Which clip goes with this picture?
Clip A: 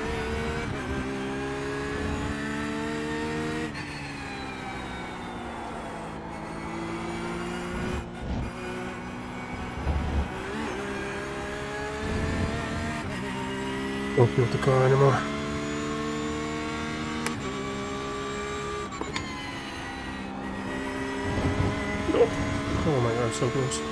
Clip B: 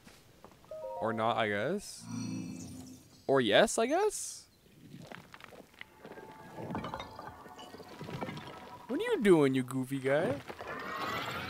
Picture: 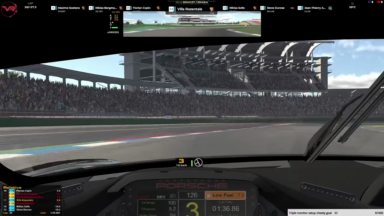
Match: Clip A